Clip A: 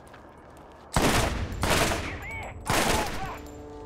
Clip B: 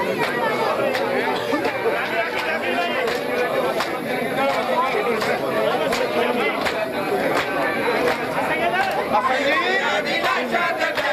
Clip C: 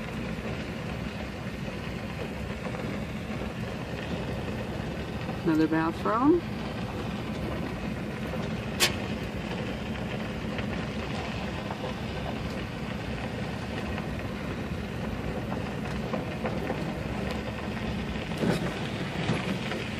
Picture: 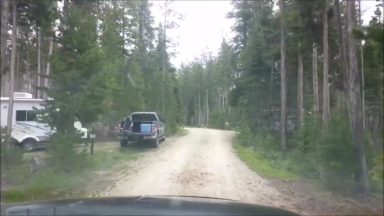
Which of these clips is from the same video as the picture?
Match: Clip C